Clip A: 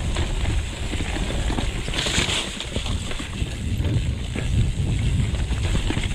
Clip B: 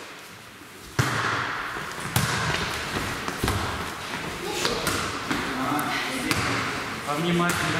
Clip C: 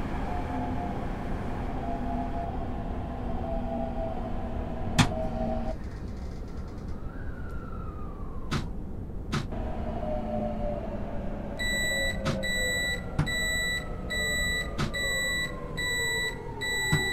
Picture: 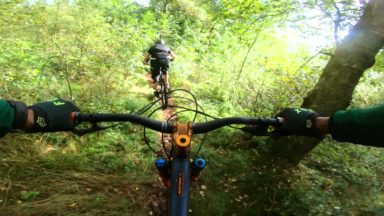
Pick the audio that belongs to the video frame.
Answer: A